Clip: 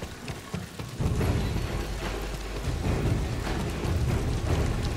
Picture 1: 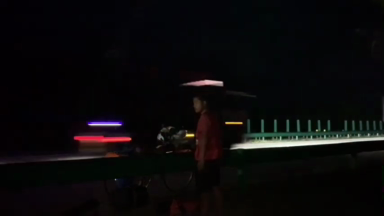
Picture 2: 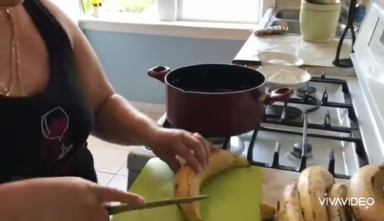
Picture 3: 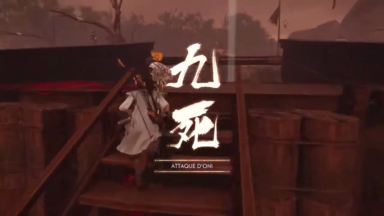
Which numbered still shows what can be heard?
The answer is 3